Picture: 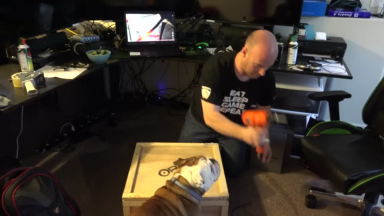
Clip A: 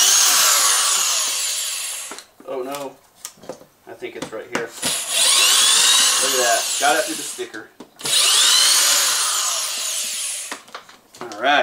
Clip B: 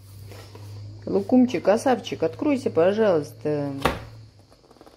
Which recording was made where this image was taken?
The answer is A